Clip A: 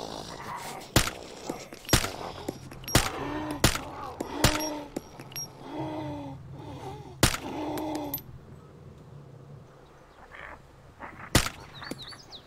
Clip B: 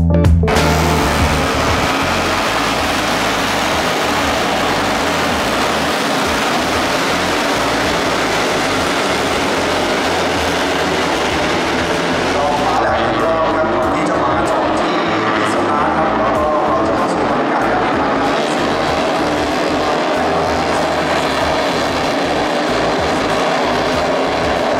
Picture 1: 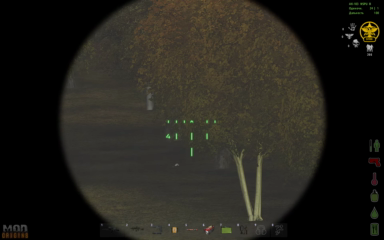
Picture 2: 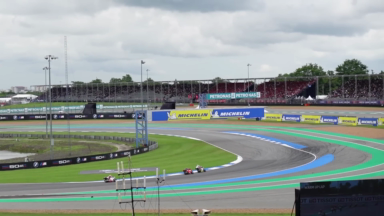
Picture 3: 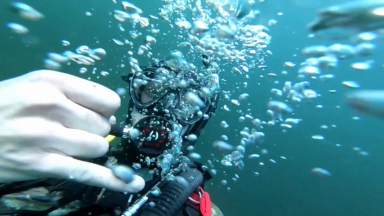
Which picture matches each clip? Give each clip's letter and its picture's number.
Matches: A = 1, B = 2